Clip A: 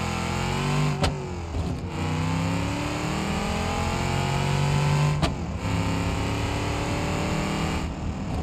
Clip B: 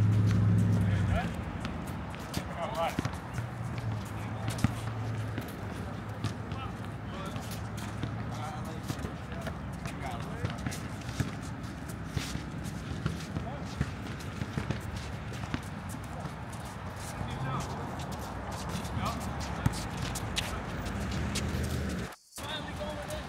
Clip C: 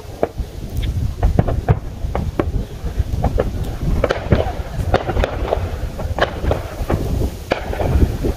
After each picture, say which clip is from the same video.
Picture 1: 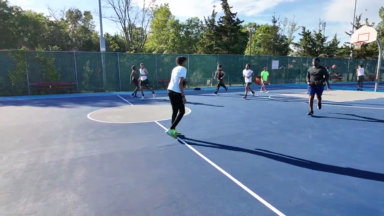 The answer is B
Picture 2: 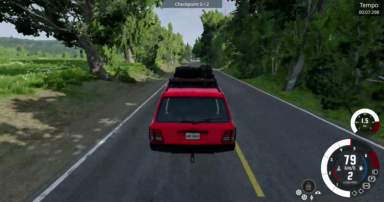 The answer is A